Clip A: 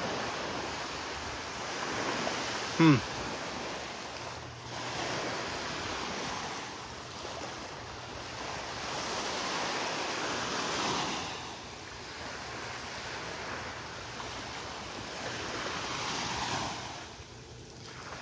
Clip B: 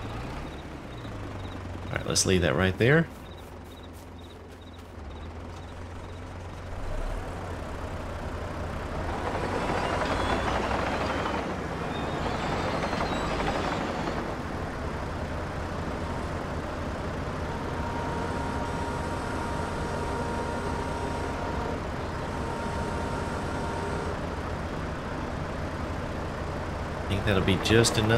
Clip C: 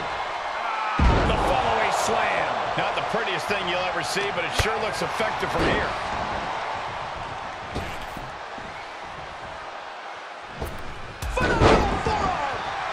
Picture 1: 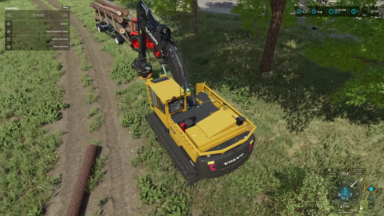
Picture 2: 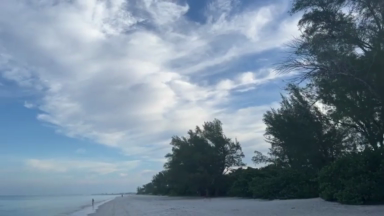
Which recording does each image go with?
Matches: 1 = B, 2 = A